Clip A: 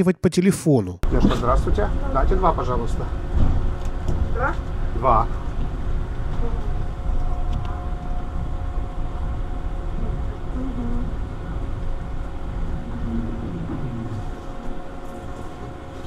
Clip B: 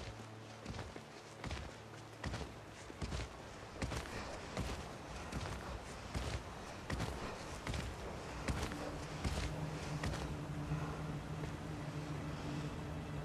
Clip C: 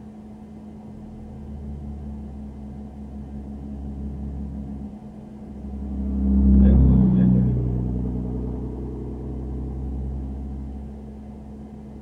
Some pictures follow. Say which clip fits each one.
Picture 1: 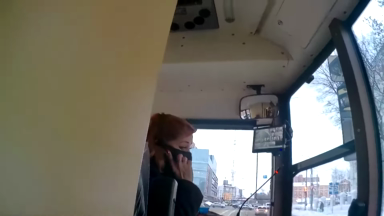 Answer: A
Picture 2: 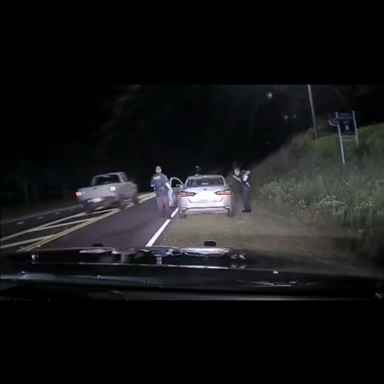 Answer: C